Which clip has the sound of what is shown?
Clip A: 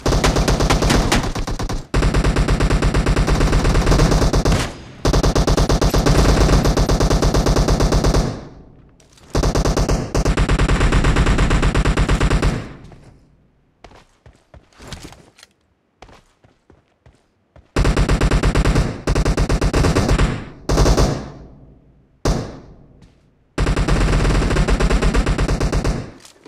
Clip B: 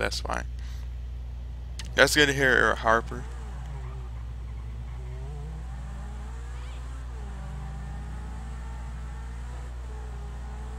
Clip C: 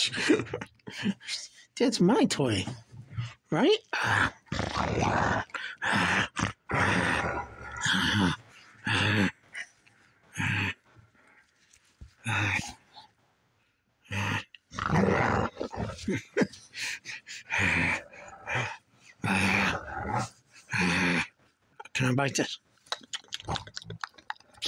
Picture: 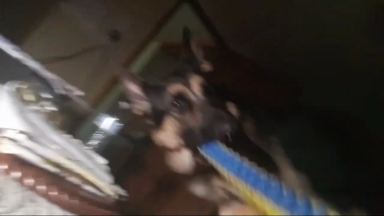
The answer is C